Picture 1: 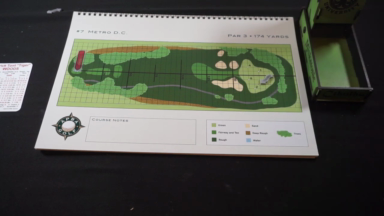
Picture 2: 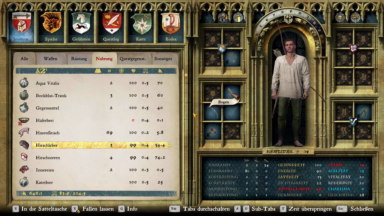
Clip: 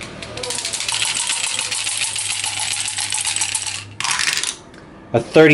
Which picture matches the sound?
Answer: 1